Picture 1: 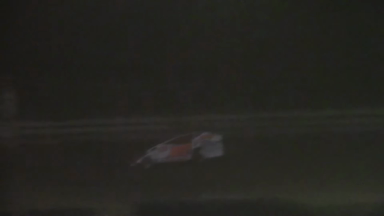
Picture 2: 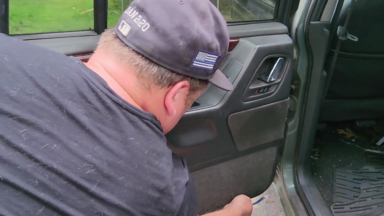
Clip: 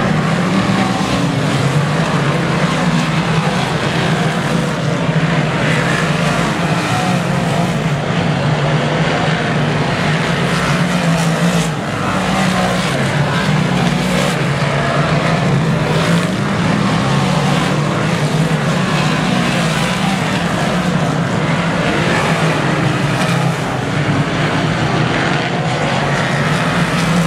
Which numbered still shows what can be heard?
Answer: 1